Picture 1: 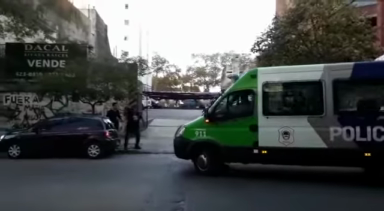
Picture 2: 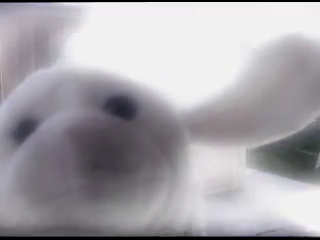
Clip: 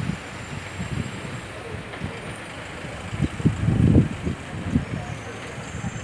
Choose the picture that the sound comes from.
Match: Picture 1